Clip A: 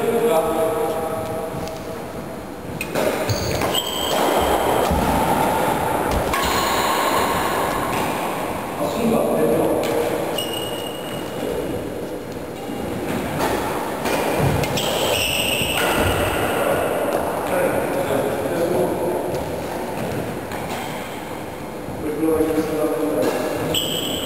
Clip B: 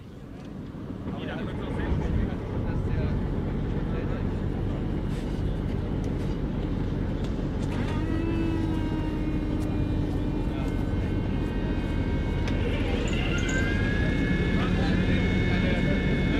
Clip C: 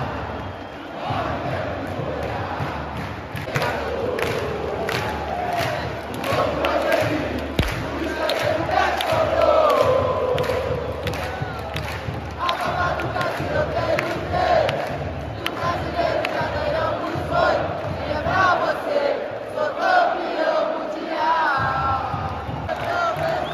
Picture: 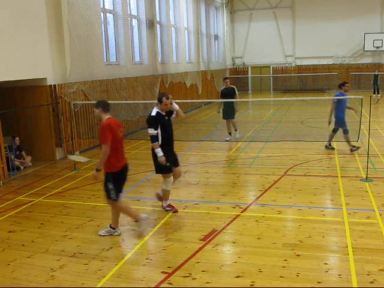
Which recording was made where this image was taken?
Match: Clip A